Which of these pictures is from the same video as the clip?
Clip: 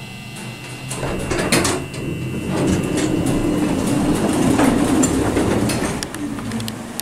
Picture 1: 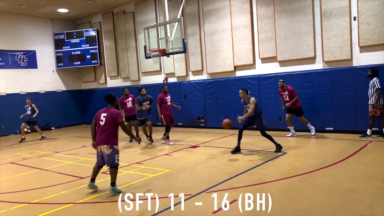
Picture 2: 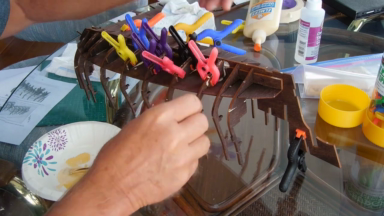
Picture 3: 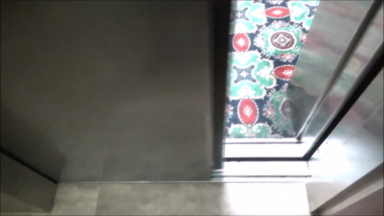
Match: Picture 3